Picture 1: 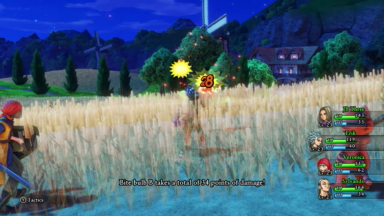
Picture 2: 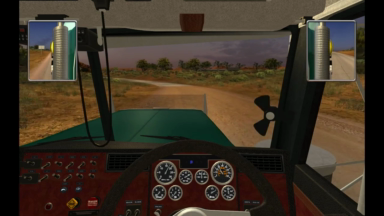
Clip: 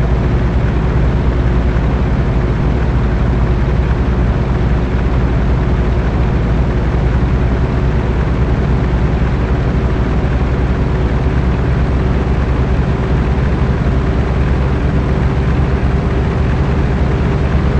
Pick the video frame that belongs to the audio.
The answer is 2